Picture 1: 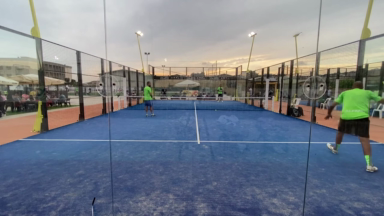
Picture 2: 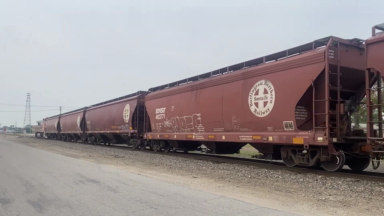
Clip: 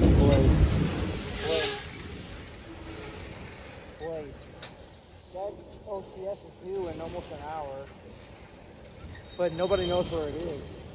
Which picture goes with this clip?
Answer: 2